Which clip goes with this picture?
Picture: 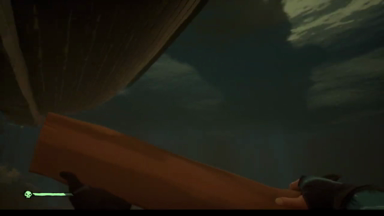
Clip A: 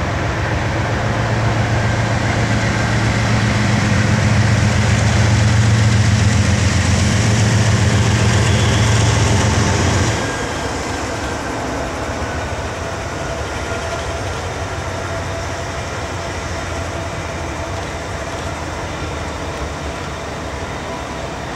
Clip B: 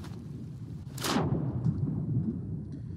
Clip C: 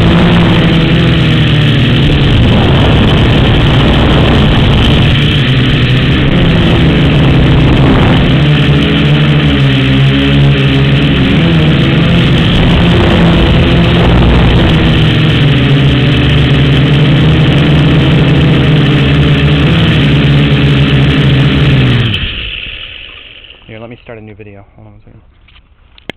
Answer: B